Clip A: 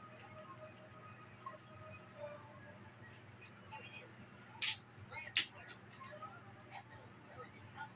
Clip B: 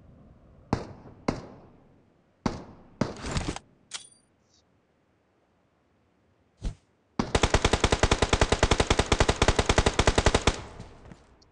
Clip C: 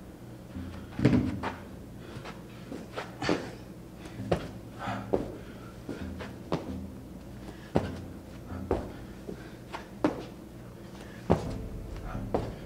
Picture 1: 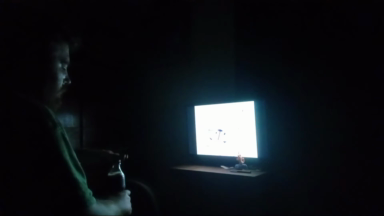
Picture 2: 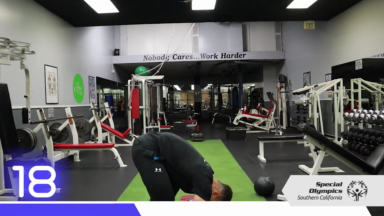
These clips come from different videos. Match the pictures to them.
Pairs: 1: A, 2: C